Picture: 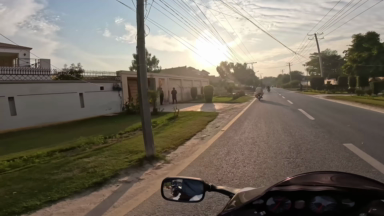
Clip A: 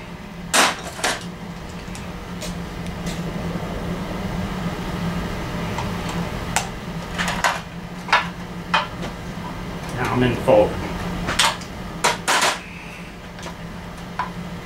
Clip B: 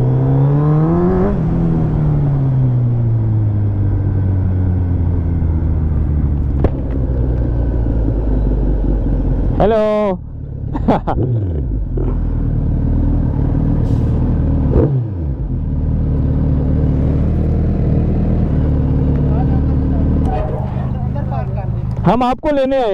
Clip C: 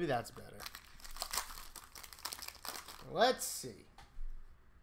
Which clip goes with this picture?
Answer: B